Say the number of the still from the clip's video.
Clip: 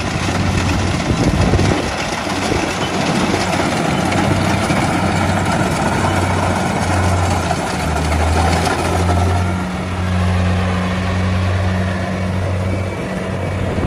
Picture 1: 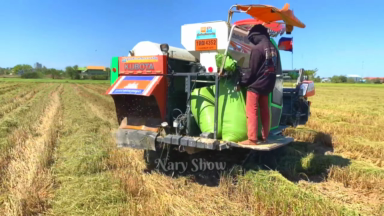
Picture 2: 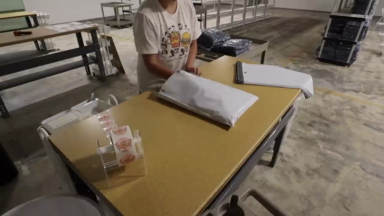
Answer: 1